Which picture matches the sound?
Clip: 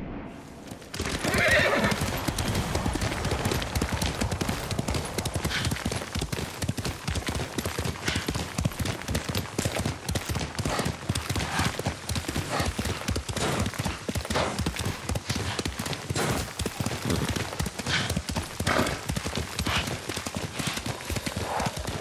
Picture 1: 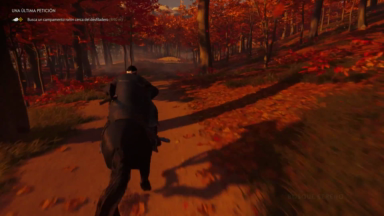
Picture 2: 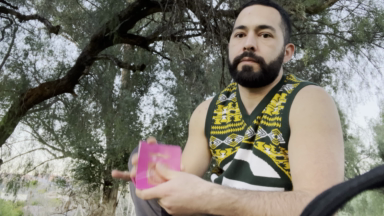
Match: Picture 1